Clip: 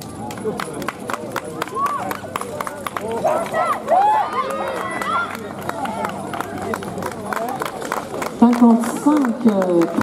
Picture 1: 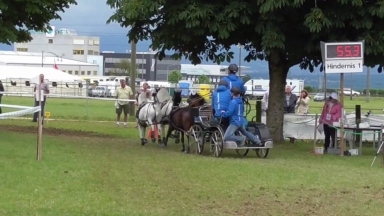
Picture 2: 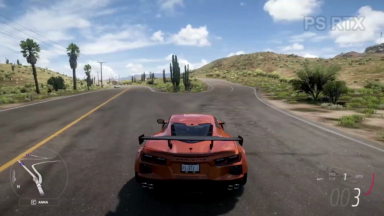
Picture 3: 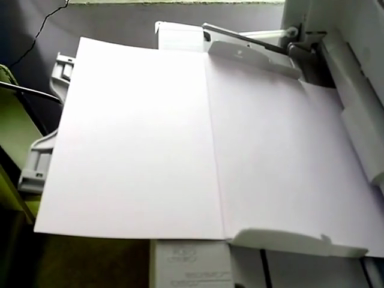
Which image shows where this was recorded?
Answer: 1